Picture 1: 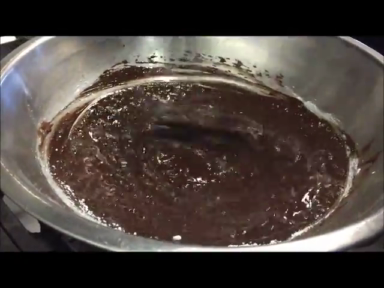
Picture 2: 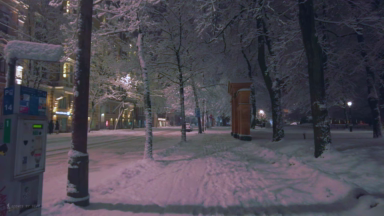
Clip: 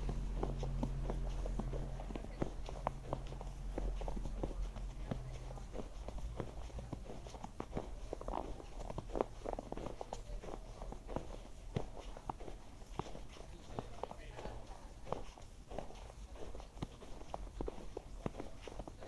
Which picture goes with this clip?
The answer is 2